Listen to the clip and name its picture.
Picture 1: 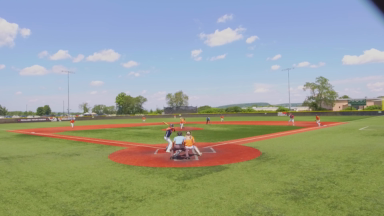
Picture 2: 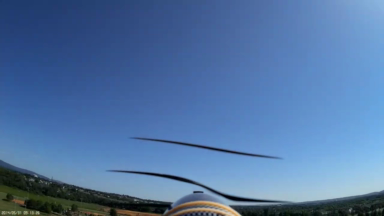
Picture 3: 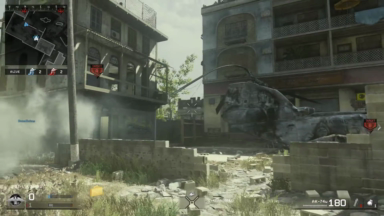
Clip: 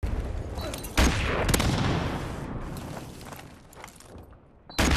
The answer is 3